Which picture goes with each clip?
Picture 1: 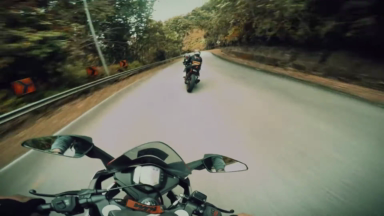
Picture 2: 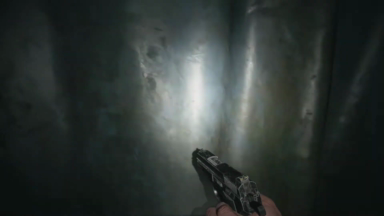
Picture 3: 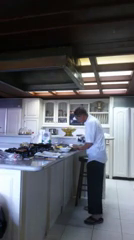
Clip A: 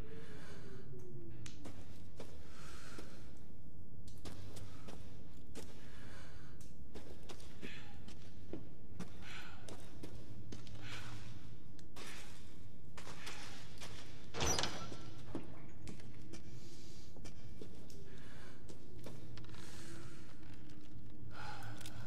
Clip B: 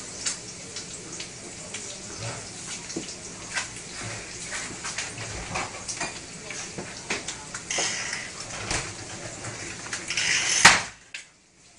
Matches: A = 2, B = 3